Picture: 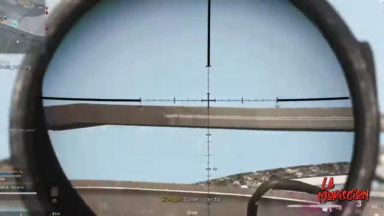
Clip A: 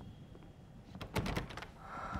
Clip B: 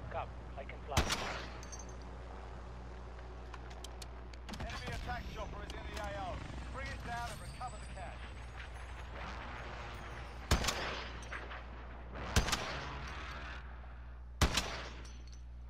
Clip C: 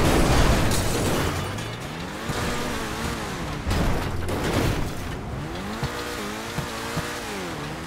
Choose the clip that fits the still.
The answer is B